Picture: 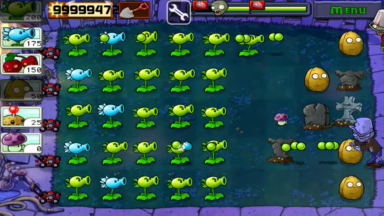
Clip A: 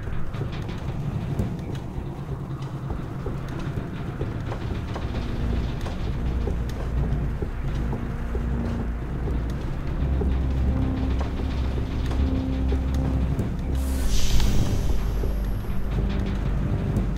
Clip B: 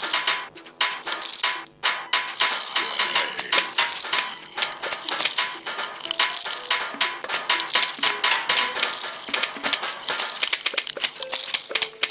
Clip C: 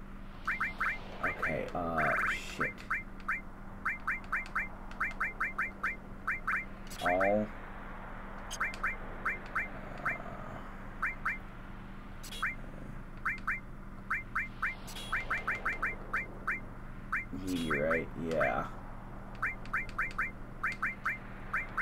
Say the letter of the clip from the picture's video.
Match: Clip B